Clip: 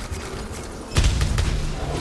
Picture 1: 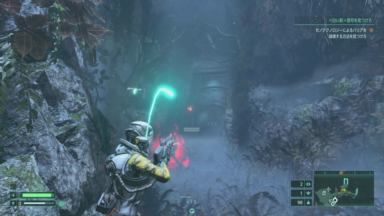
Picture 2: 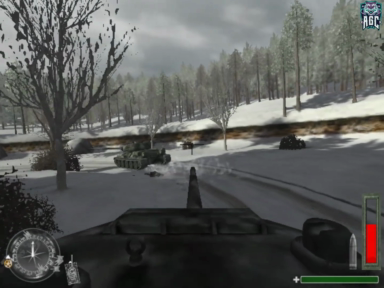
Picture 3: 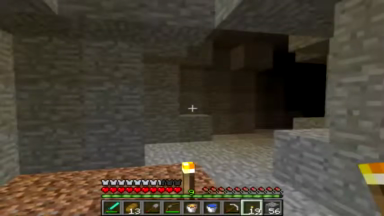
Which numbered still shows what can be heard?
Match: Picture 1